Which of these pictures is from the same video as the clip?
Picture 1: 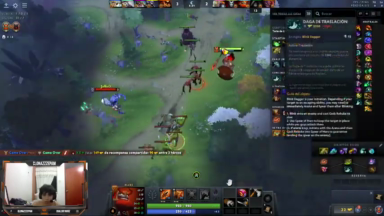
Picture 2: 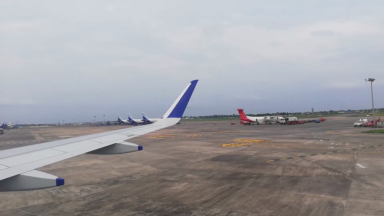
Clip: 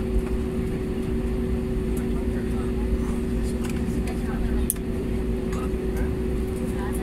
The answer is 2